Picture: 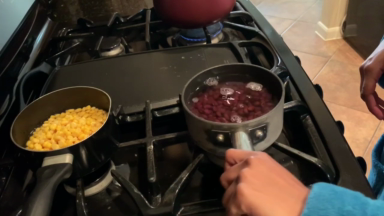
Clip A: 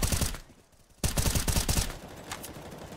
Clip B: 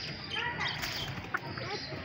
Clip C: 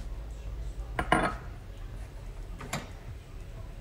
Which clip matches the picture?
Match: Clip C